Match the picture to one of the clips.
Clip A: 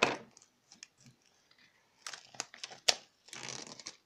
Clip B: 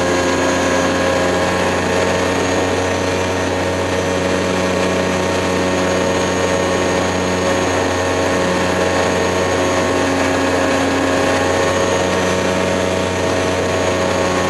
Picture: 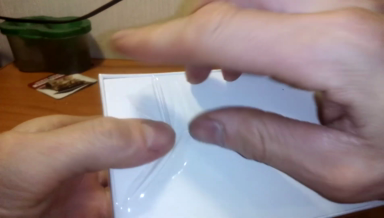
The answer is A